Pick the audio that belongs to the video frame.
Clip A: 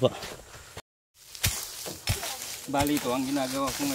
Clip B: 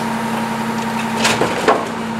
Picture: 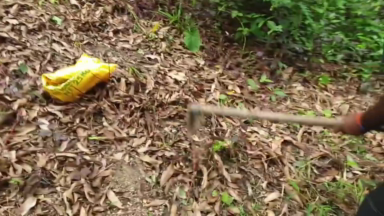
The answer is A